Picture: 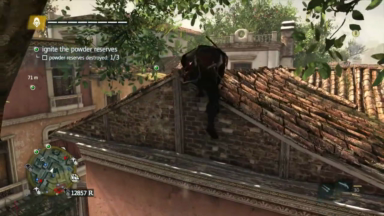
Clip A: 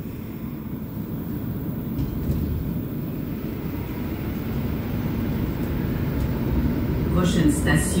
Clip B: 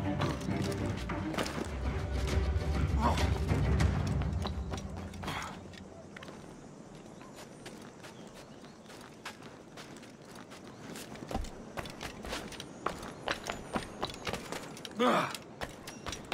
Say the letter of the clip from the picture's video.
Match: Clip B